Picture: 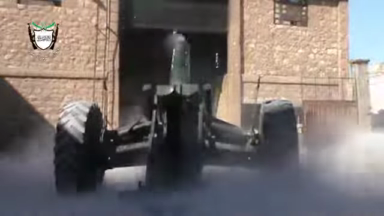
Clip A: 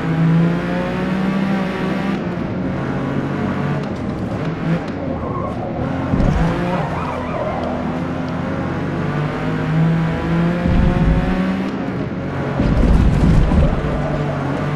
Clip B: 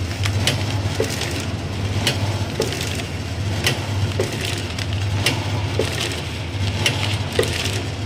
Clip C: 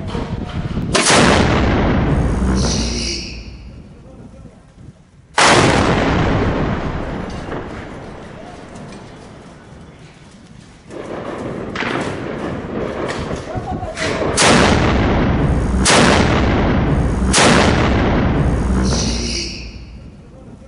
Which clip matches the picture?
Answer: C